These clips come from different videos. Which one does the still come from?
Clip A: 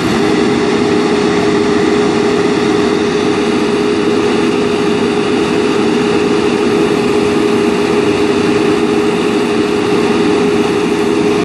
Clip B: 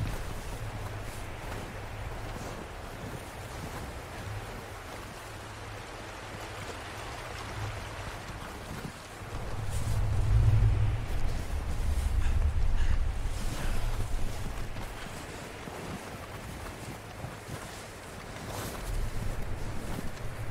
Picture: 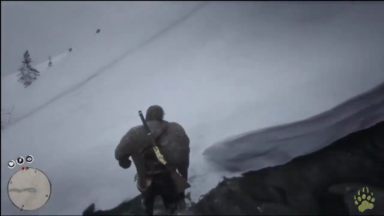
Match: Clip B